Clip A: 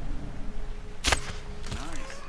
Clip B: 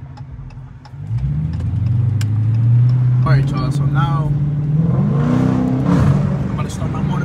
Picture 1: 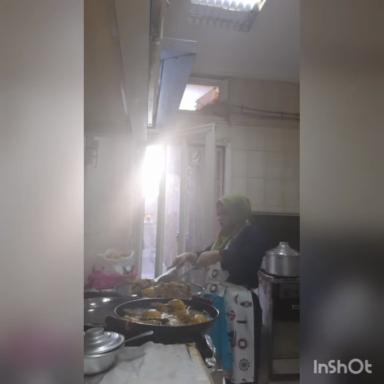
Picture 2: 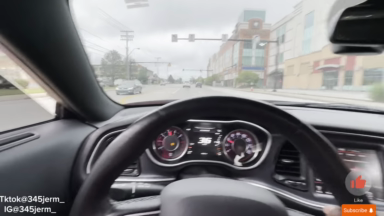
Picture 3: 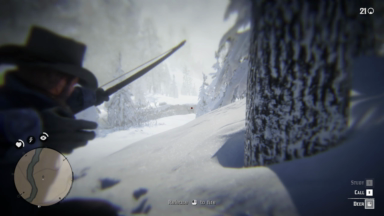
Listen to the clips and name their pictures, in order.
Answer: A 3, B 2